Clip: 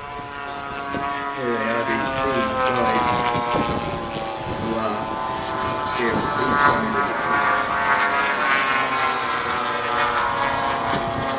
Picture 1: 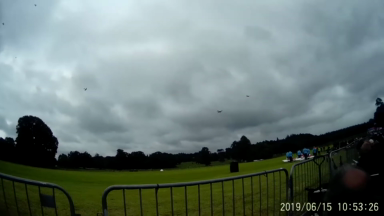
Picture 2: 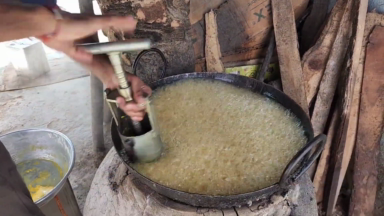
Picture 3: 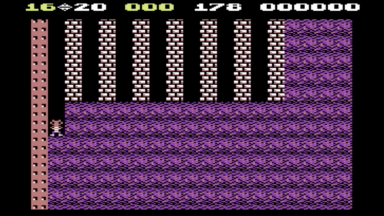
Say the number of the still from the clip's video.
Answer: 1